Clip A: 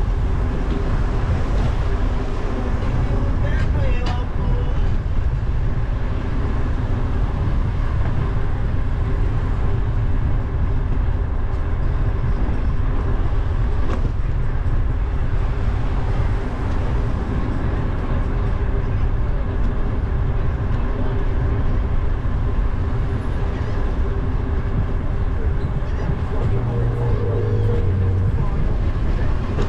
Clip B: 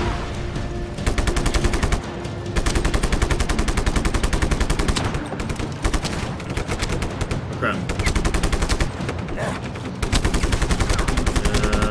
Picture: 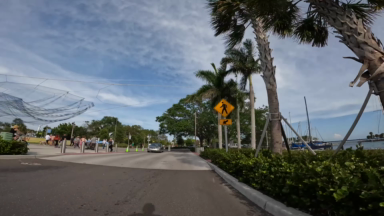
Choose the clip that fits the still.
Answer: A